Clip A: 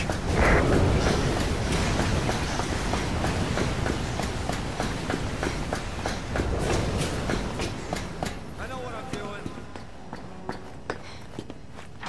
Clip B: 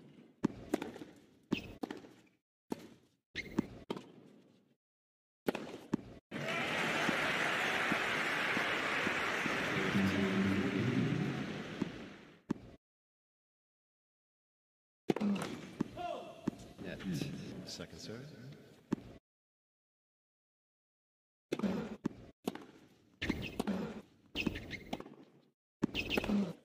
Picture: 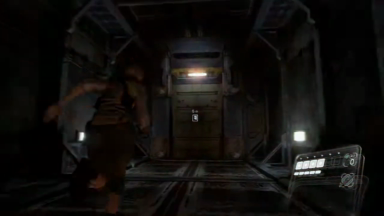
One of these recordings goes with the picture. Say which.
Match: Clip A